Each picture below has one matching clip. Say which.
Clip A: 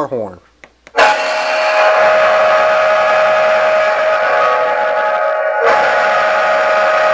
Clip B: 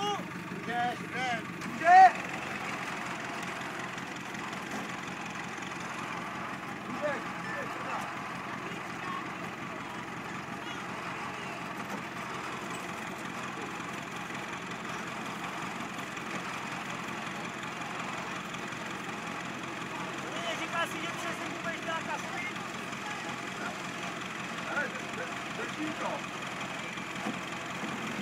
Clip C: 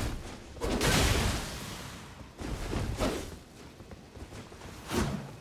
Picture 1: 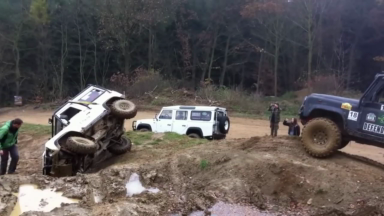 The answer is B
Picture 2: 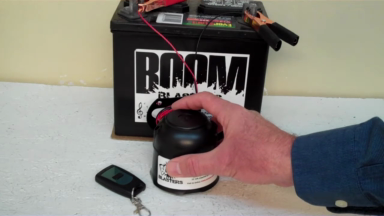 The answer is A